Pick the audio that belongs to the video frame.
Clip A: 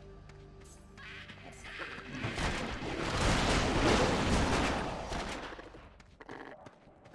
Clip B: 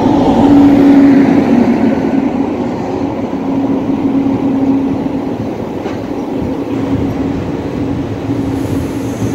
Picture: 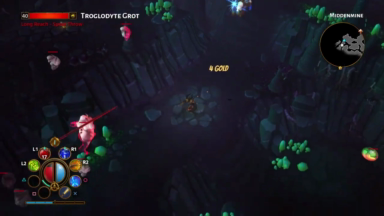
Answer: A